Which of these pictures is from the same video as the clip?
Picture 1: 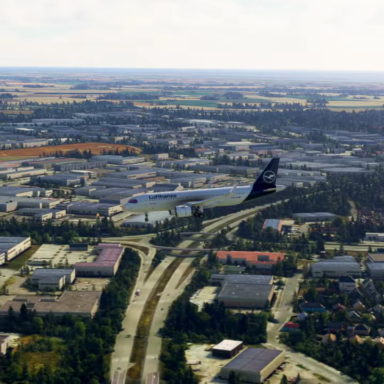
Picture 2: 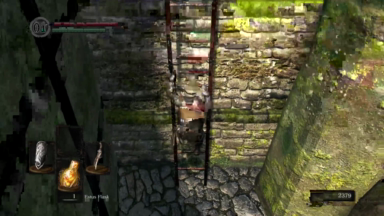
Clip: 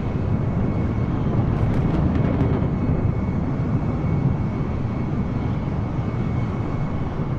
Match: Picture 1